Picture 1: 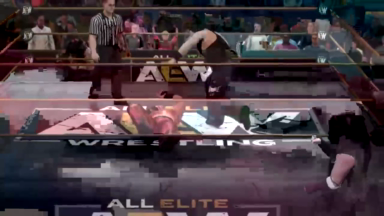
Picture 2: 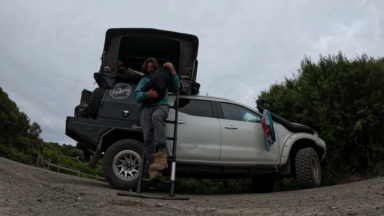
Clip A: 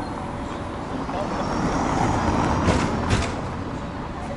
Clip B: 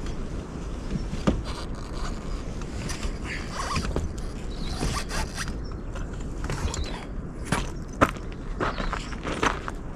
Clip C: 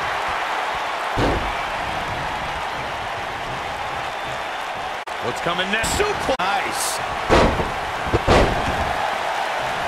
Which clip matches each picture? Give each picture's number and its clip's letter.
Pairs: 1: C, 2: B